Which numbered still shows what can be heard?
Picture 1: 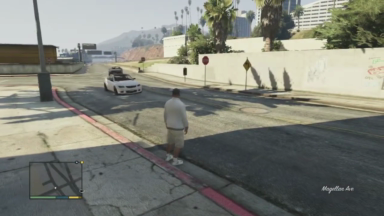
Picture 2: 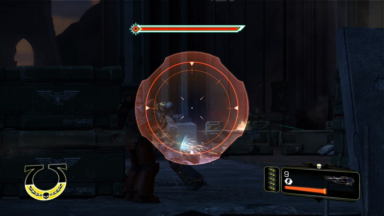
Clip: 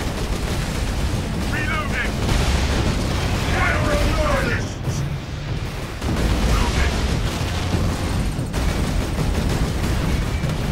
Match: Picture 2